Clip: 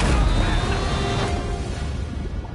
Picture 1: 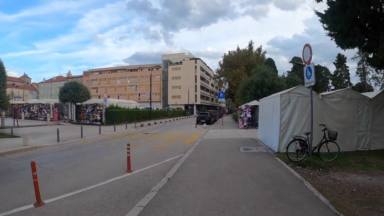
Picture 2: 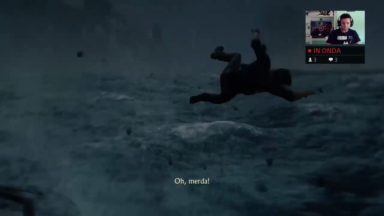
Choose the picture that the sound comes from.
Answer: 2